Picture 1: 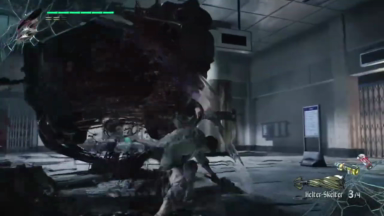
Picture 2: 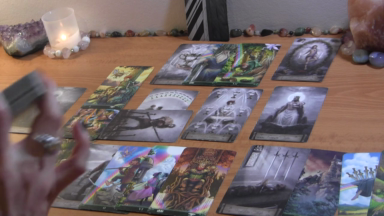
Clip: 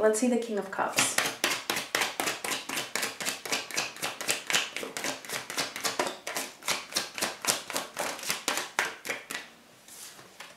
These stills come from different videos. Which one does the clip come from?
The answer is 2